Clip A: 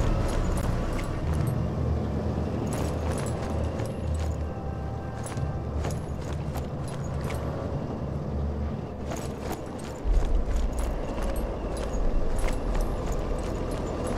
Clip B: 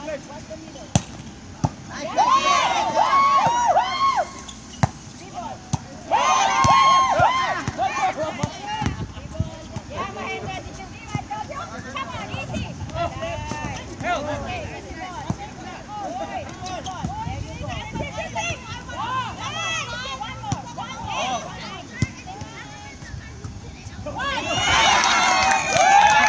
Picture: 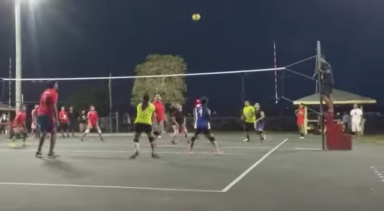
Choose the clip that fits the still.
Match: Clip B